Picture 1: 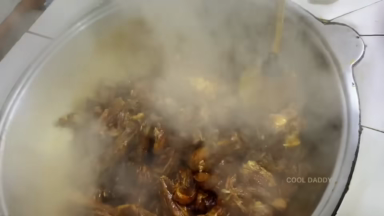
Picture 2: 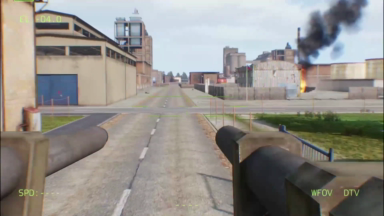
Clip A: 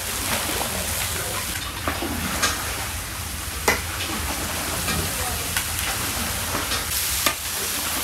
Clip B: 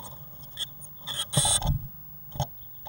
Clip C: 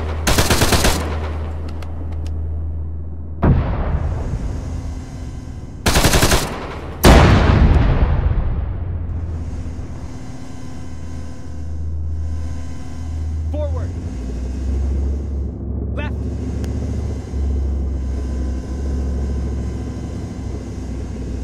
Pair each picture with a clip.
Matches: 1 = A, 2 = C